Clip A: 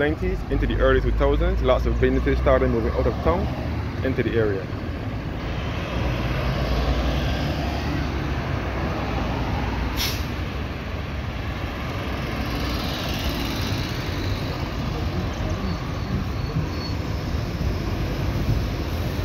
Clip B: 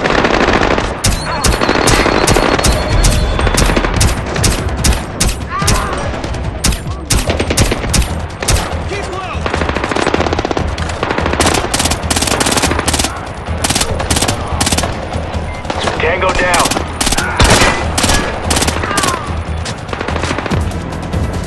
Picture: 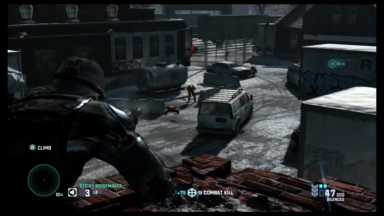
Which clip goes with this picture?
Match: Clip B